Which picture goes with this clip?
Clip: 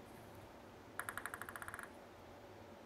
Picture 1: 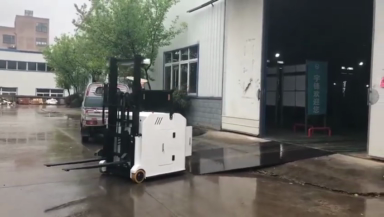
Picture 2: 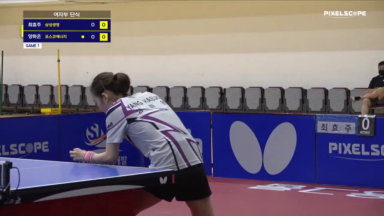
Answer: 2